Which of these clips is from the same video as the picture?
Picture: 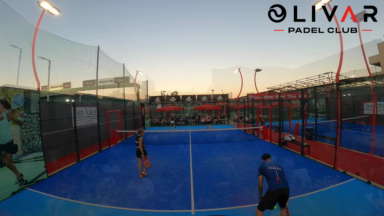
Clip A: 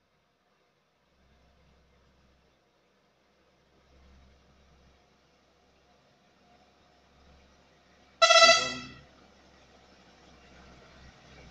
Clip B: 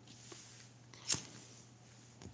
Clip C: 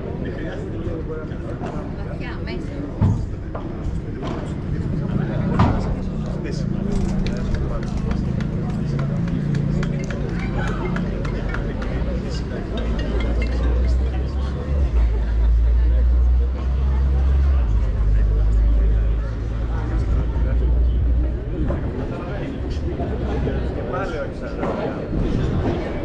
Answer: C